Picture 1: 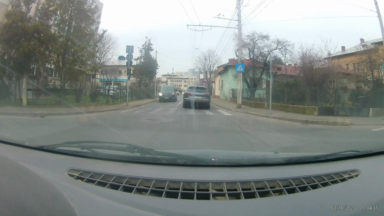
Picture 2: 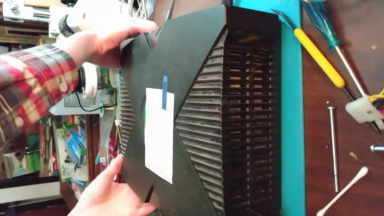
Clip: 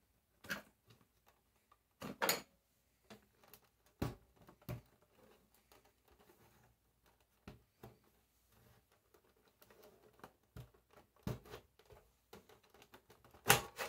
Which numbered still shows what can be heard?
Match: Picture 2